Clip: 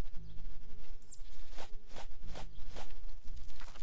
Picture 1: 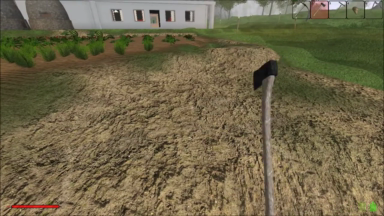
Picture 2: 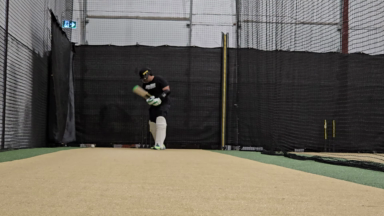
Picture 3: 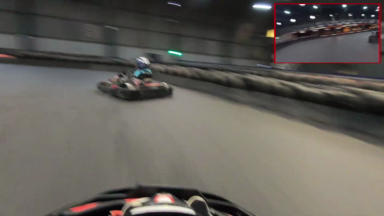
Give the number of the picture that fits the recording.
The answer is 1